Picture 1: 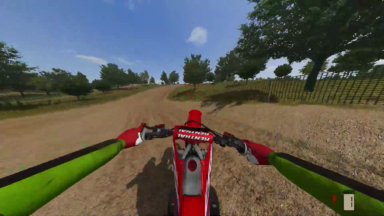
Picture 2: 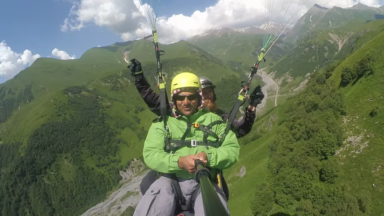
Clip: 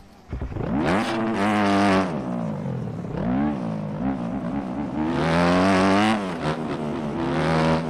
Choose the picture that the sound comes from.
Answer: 1